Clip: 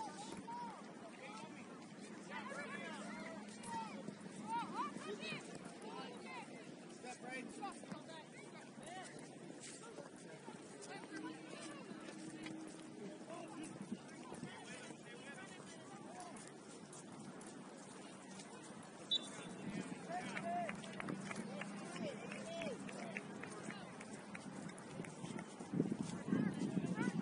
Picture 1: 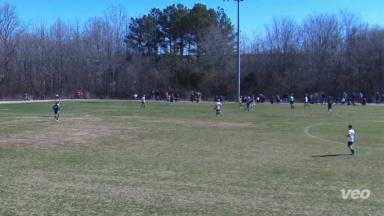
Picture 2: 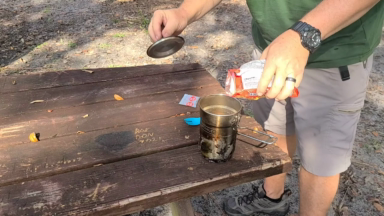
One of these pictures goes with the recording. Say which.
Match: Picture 1